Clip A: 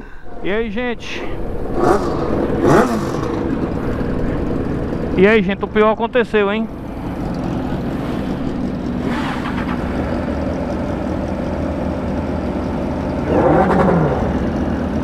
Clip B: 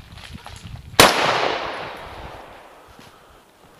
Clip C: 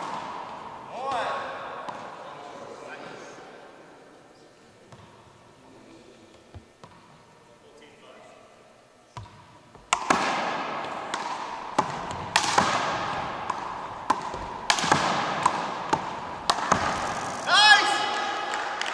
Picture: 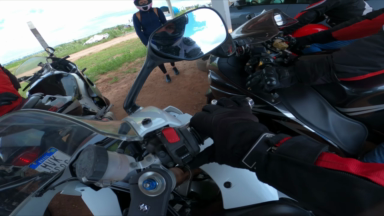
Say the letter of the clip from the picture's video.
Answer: A